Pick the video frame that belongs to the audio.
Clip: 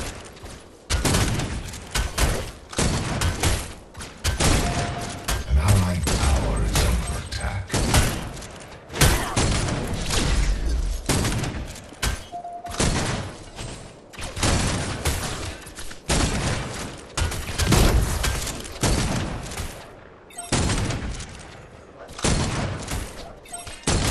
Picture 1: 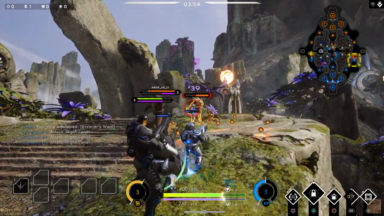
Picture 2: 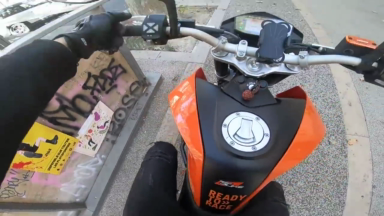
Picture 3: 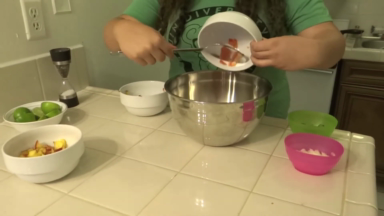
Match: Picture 1